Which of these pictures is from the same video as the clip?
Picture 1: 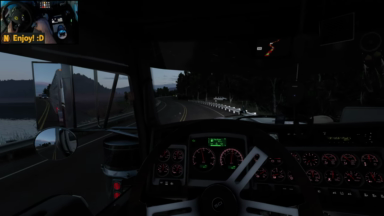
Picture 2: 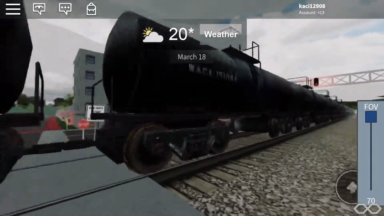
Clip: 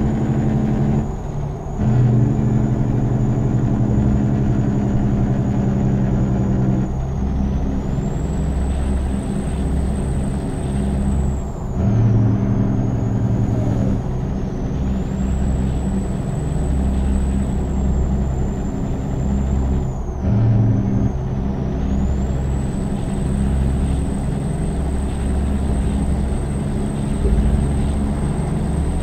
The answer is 1